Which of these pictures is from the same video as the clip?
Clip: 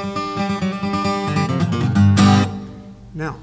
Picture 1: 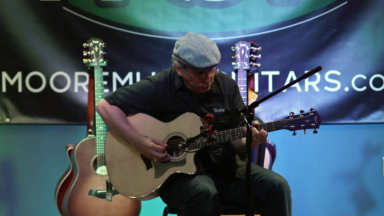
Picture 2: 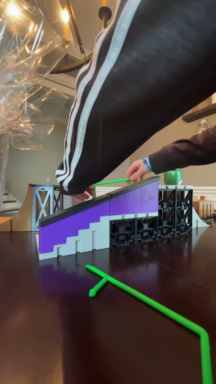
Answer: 1